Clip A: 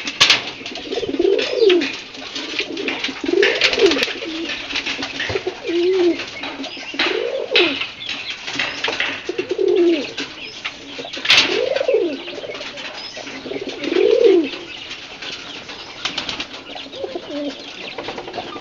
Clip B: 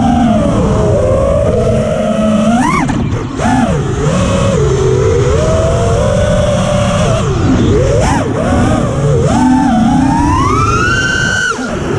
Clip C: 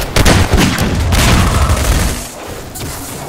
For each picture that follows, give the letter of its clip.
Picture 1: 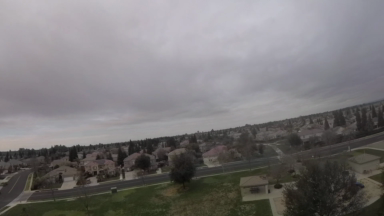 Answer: B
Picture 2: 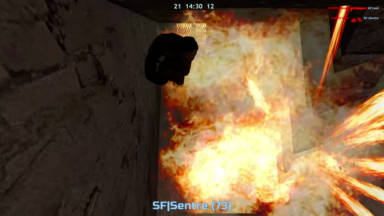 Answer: C